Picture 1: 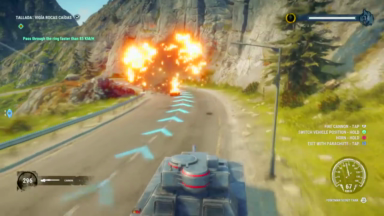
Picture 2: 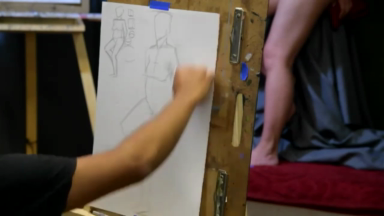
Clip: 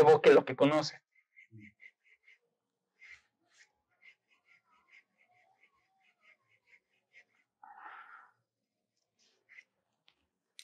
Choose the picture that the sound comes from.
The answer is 2